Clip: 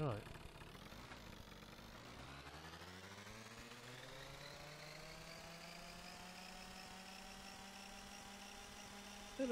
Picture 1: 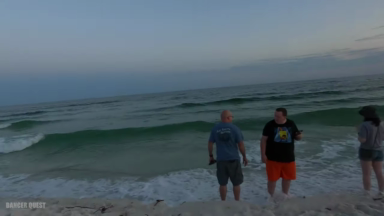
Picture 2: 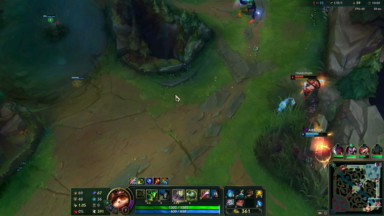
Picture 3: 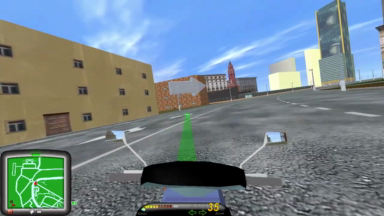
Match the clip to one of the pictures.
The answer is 3